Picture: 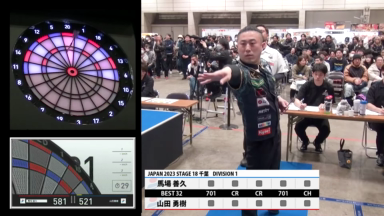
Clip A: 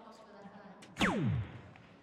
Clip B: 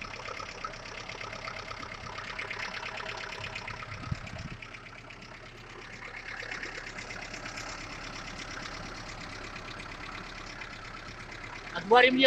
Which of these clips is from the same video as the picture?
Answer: A